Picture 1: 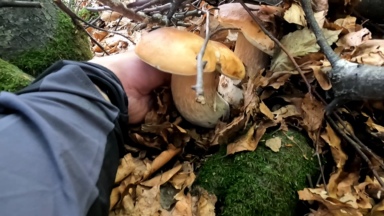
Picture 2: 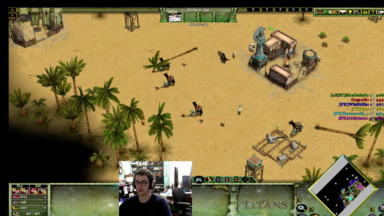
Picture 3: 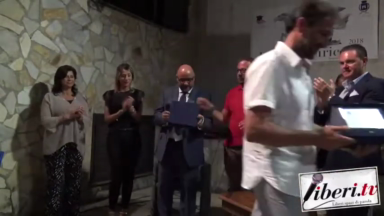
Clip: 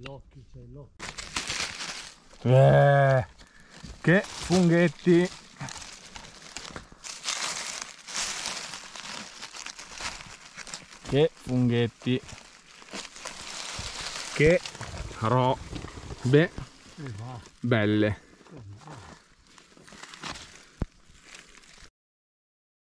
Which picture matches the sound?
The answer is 1